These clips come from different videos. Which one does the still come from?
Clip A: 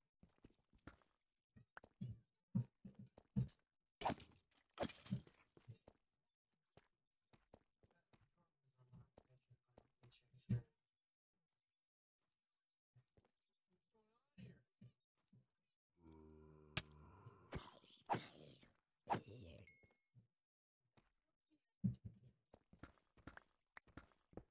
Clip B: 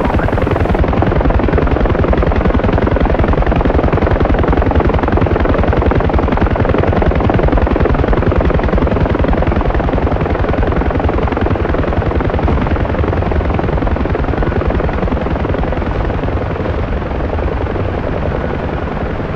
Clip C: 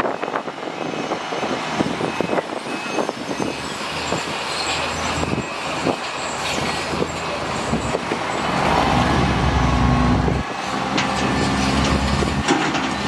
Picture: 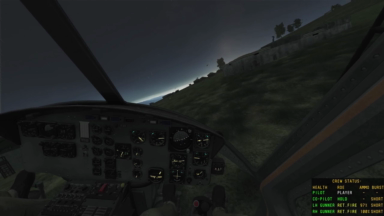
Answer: B